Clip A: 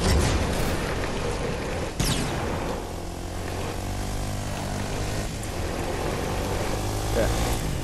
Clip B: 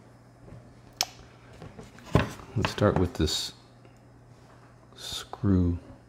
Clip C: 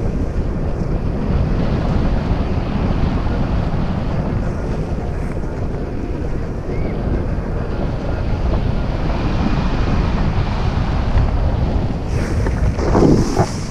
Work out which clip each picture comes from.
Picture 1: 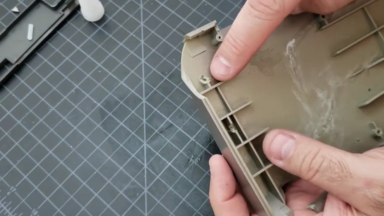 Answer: B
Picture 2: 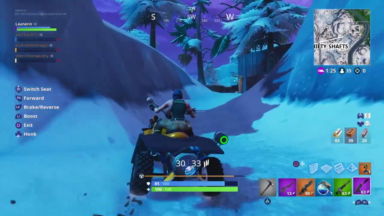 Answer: A